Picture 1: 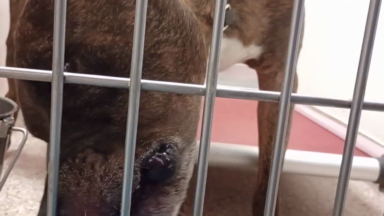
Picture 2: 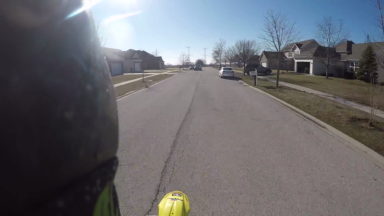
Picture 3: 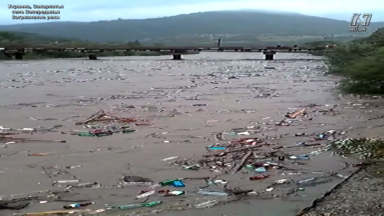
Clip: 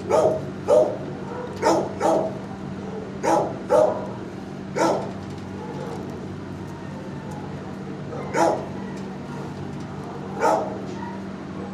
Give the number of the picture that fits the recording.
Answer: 1